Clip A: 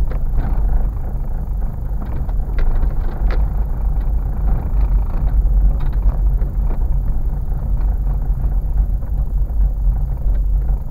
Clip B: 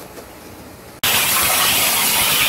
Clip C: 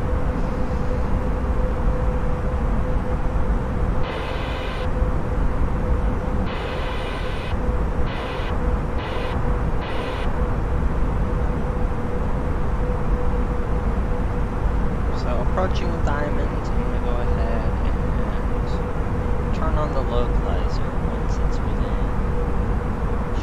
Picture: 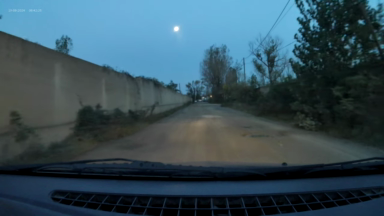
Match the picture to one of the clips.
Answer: A